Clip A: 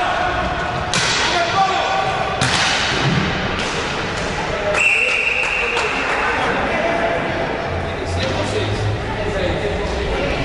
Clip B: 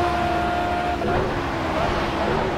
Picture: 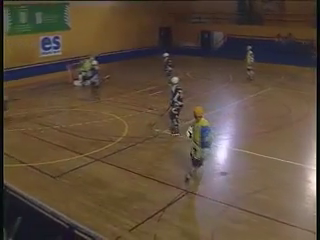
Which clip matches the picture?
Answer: A